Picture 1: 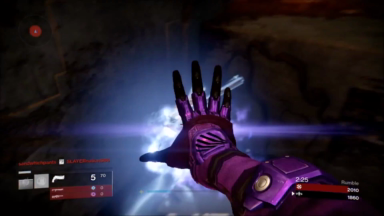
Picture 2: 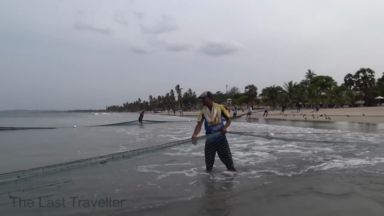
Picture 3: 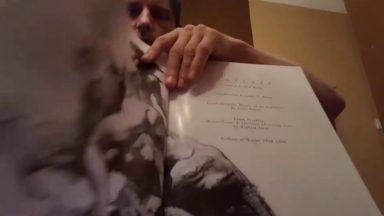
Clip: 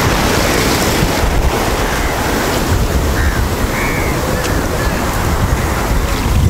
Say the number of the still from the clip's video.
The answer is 2